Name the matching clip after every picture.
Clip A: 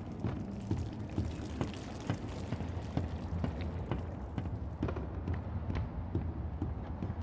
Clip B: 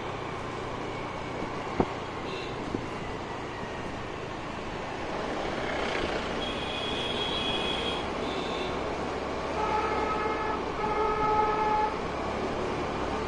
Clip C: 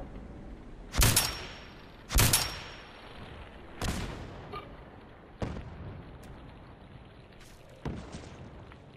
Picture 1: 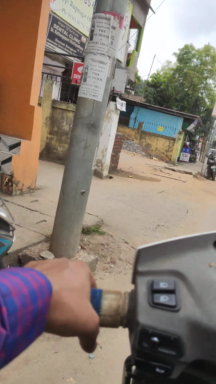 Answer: B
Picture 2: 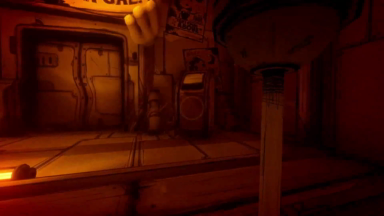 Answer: A